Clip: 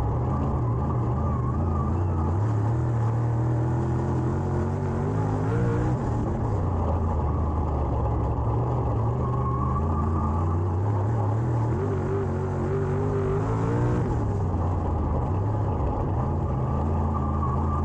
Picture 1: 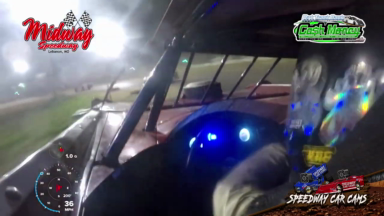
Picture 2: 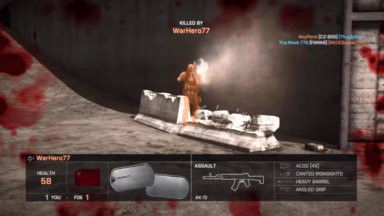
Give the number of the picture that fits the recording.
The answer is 1